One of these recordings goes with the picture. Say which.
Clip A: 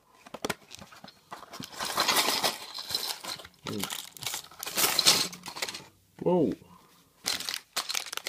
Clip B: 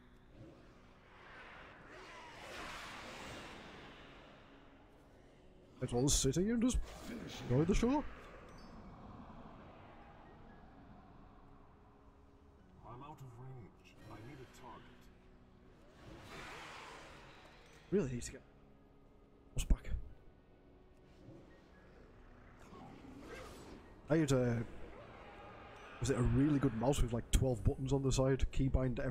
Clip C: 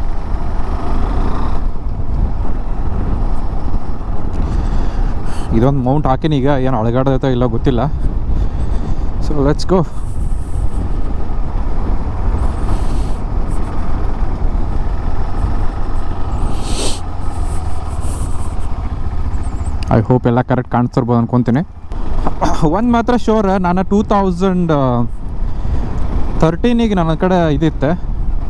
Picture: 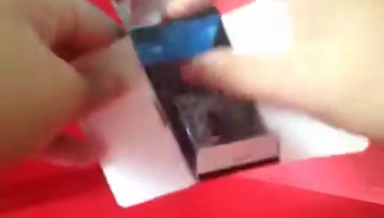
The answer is A